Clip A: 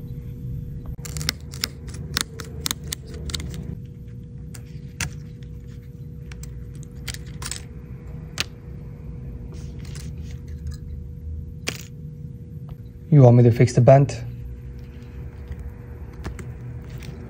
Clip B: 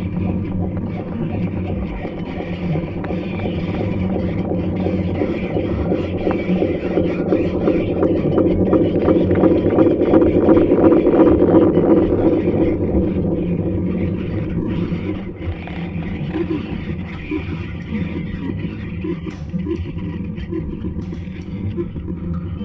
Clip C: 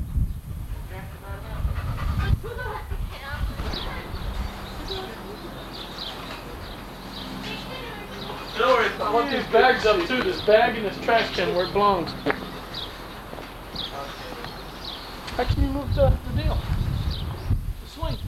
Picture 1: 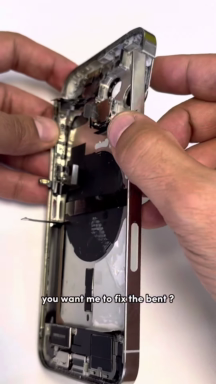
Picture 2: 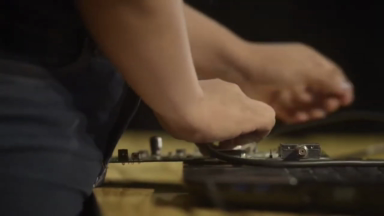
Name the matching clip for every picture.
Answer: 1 A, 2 B